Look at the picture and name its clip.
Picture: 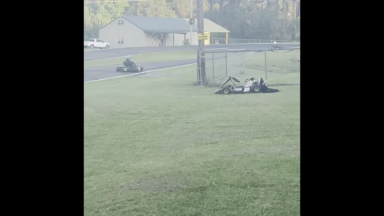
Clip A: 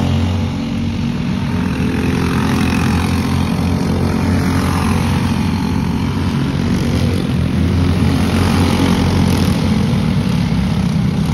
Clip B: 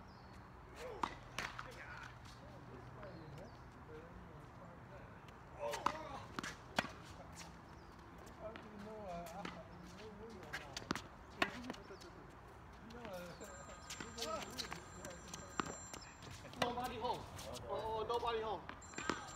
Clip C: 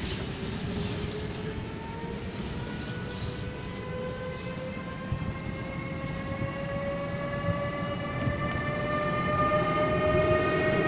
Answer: A